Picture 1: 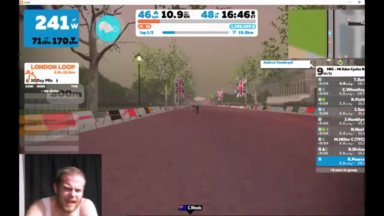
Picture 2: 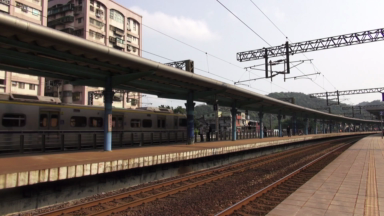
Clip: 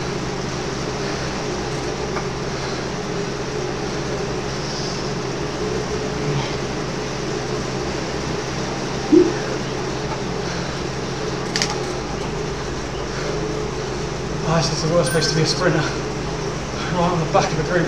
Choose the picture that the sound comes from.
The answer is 1